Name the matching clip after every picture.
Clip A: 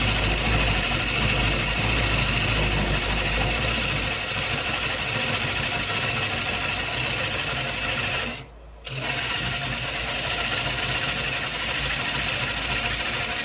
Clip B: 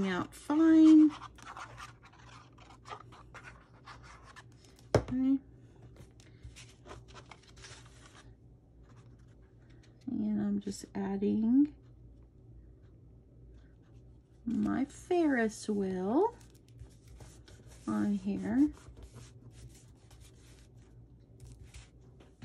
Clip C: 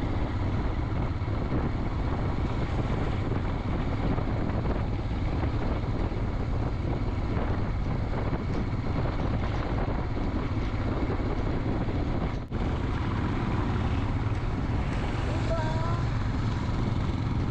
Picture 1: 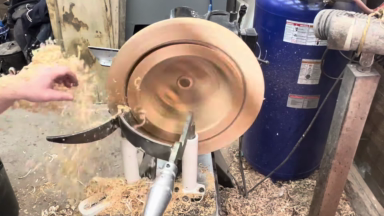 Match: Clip A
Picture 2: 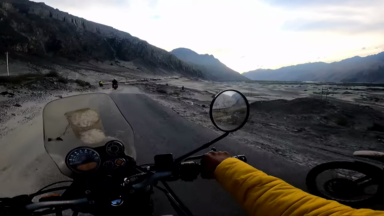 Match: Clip C